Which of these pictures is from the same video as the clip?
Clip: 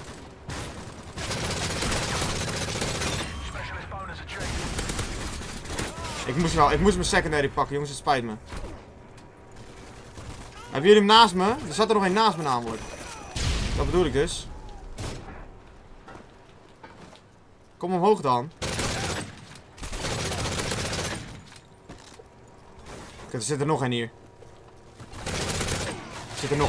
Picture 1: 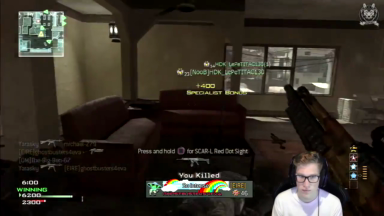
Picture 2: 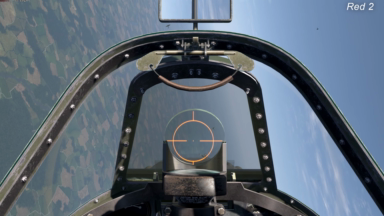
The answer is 1